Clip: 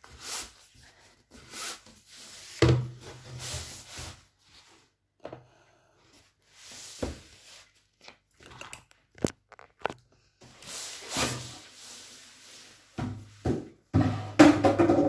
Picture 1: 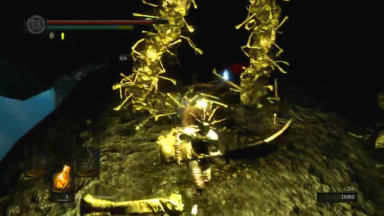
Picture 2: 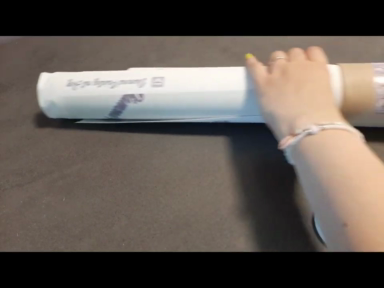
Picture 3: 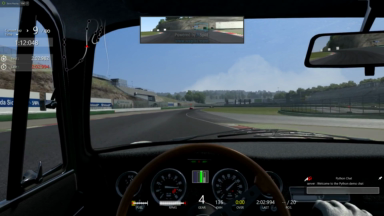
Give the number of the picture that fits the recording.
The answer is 2